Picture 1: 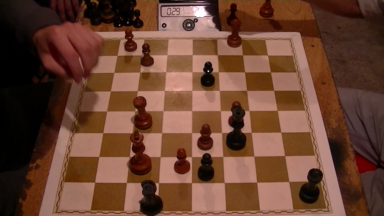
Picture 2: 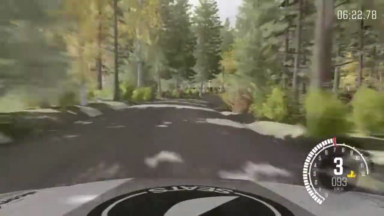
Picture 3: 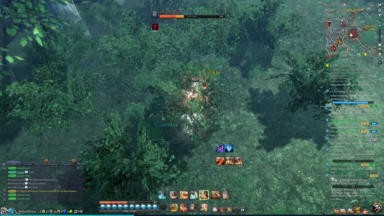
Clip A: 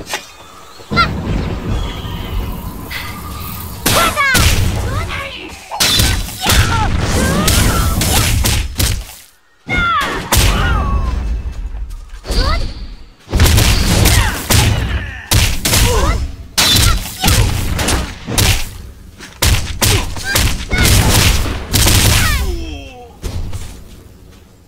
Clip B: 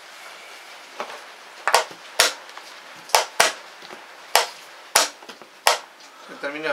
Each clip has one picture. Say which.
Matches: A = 3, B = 1